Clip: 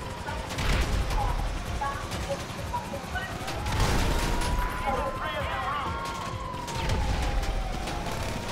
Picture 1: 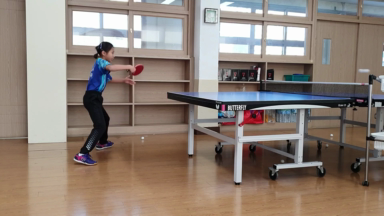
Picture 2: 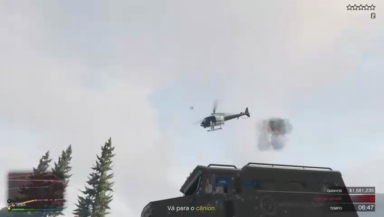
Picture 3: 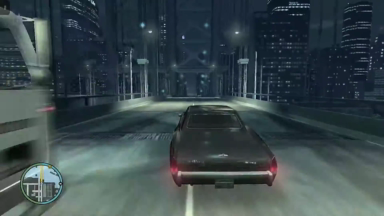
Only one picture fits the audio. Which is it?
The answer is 2